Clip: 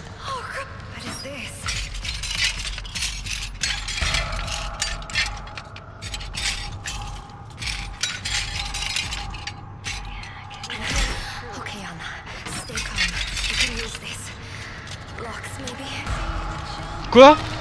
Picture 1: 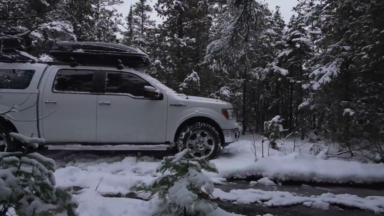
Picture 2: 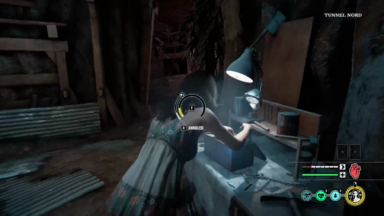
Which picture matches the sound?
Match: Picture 2